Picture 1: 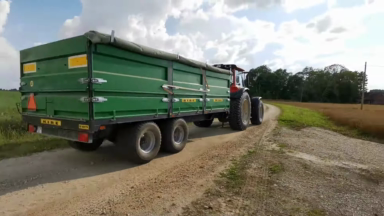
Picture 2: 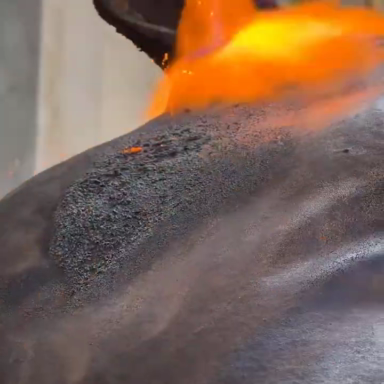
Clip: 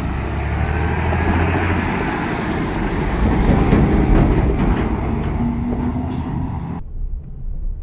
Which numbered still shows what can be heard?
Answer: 1